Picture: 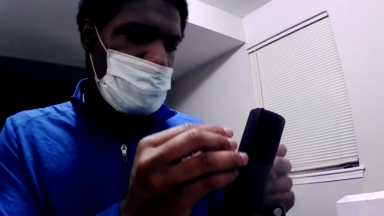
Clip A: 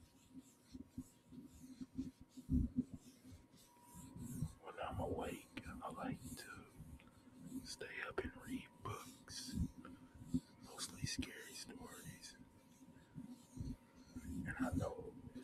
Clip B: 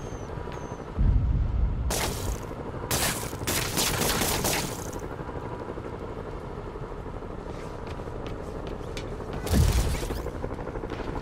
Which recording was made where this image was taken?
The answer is A